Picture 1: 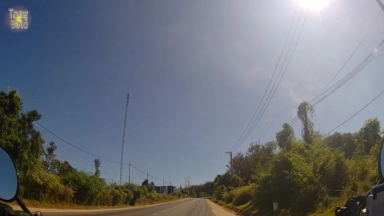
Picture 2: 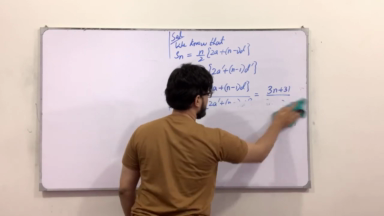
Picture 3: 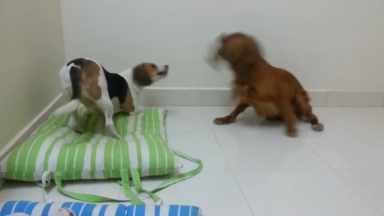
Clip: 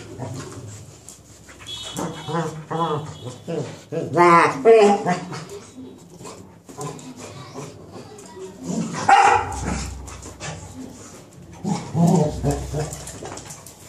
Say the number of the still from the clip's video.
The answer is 3